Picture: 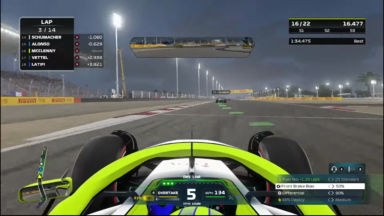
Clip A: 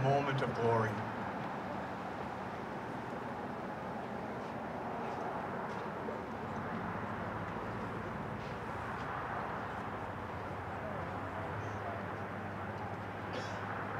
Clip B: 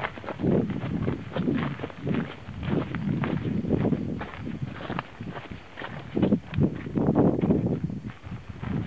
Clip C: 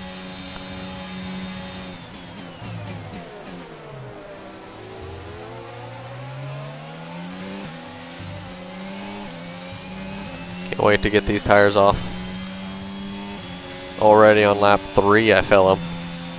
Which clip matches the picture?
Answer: C